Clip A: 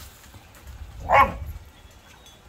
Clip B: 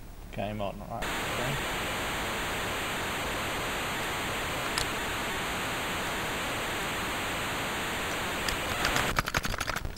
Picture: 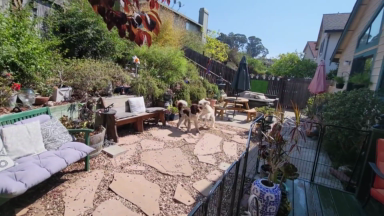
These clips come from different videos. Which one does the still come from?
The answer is A